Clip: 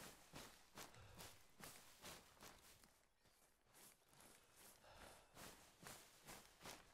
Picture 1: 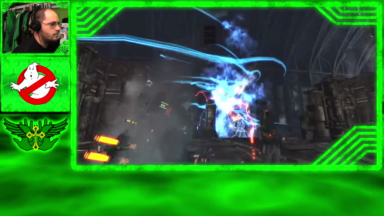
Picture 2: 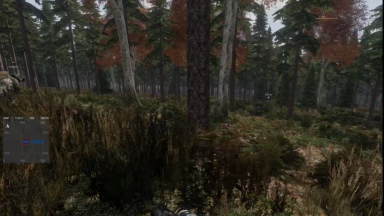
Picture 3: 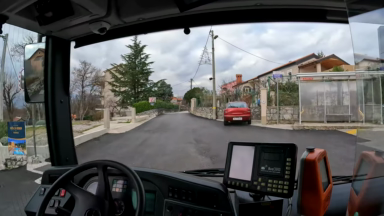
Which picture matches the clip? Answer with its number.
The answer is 2